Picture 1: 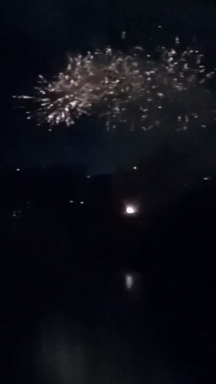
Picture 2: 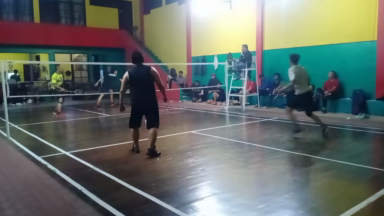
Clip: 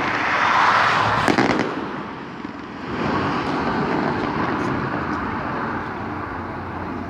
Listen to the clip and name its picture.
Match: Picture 1